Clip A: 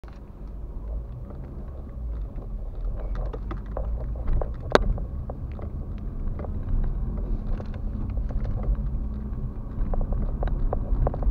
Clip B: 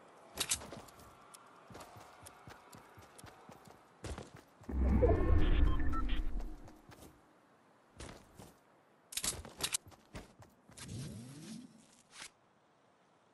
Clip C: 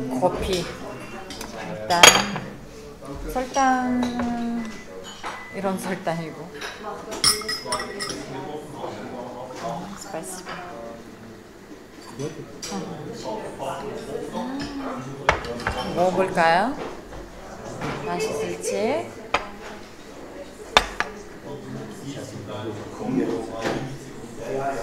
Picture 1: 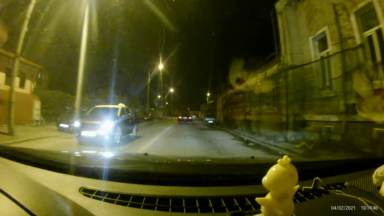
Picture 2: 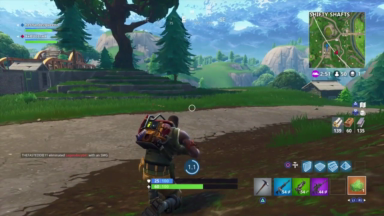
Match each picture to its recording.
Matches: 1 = A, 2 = B